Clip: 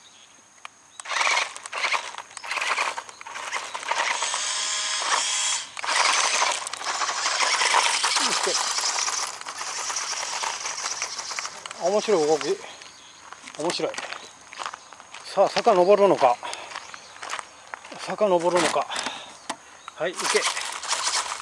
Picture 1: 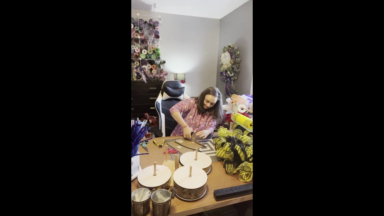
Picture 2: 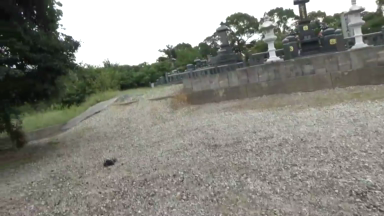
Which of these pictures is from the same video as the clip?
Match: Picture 2